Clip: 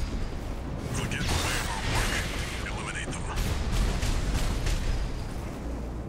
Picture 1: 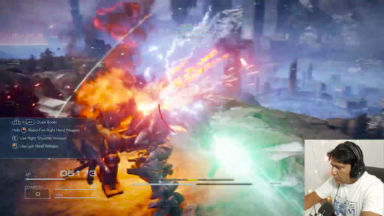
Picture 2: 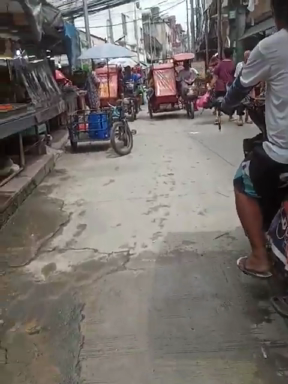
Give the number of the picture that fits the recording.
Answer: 1